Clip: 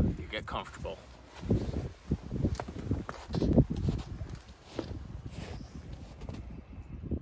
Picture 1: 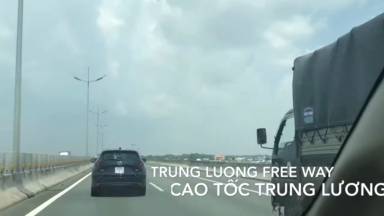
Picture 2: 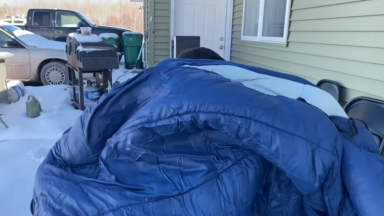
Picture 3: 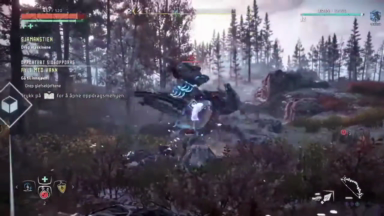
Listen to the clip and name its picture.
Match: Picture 2